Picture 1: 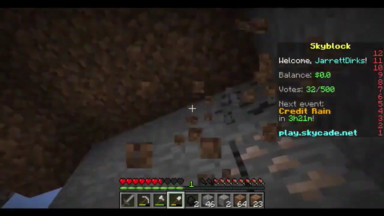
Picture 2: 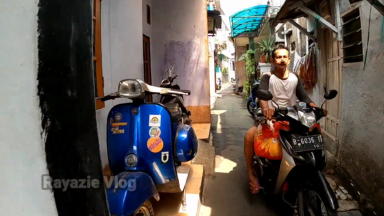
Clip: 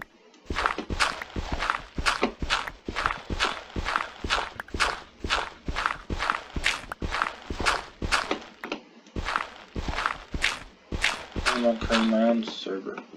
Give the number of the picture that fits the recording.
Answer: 1